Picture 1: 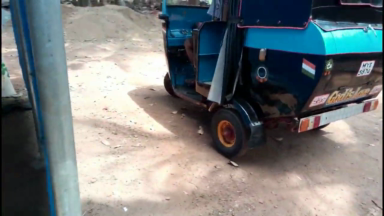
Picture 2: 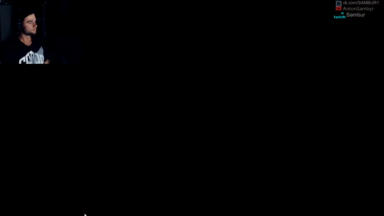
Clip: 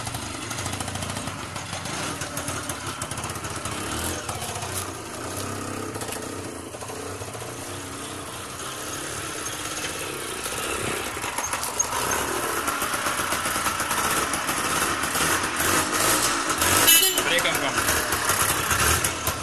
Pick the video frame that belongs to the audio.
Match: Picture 1